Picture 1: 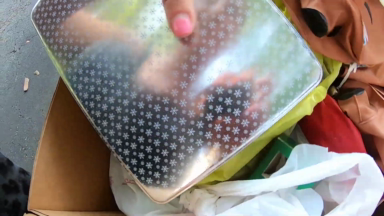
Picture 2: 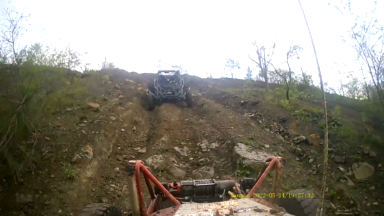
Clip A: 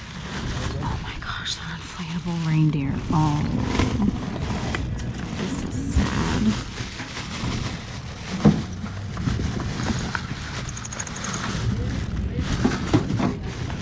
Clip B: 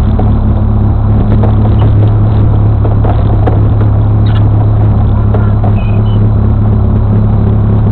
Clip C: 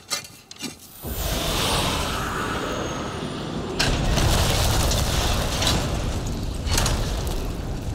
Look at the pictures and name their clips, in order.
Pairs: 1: A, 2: B